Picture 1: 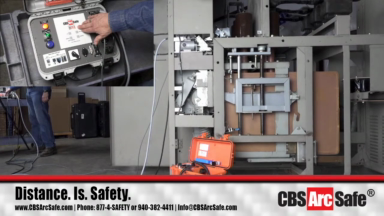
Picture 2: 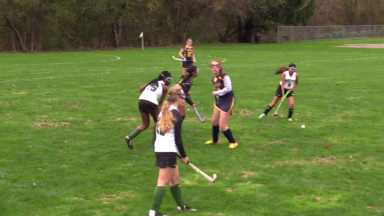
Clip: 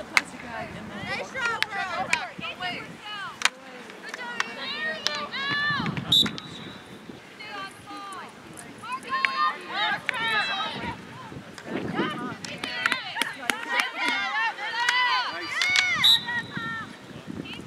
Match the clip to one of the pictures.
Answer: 2